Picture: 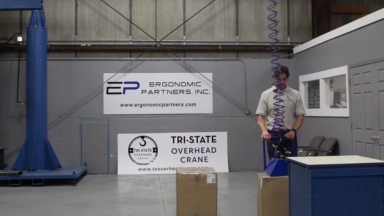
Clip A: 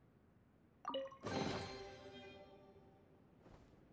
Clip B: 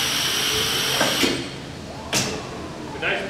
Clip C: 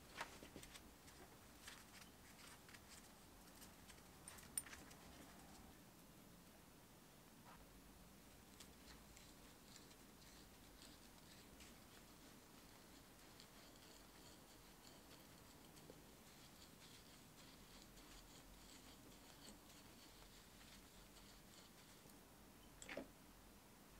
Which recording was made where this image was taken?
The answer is B